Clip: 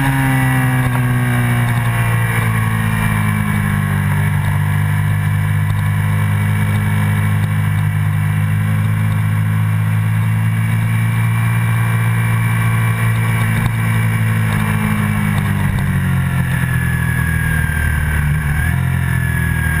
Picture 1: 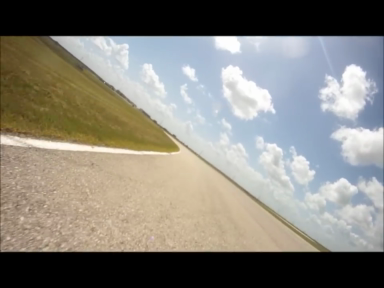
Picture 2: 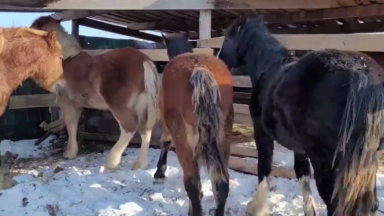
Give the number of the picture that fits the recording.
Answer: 1